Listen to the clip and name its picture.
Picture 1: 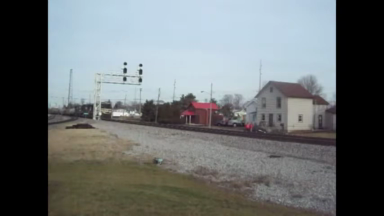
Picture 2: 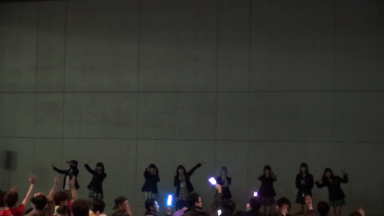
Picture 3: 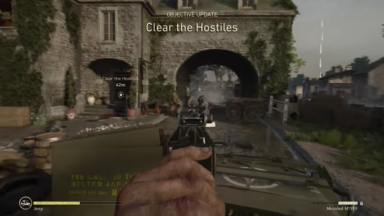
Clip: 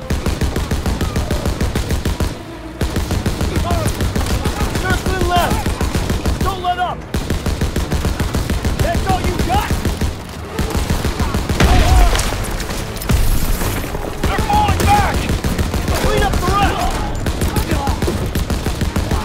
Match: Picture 3